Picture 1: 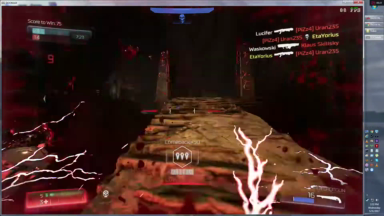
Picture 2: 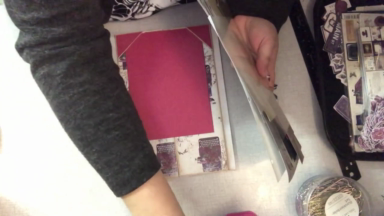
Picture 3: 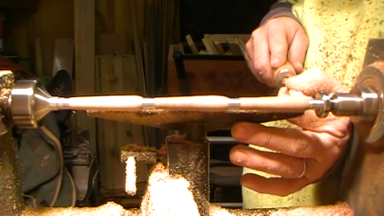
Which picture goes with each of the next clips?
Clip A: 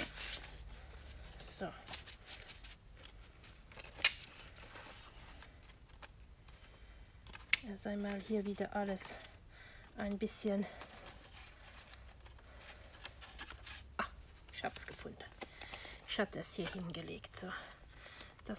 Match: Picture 2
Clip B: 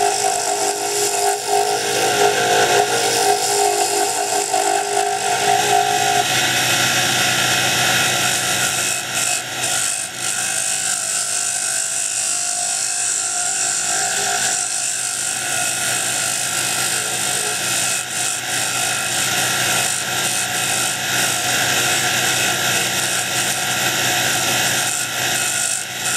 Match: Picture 3